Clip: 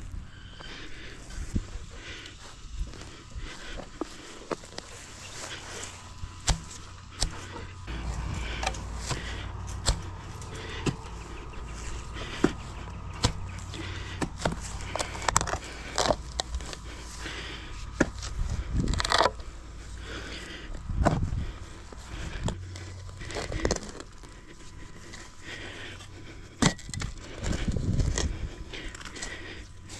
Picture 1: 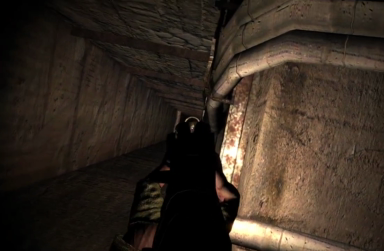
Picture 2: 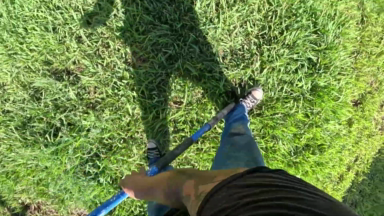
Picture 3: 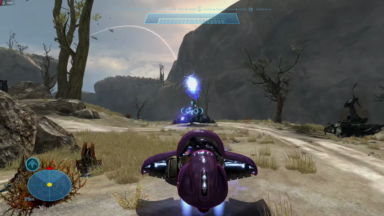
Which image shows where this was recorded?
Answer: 2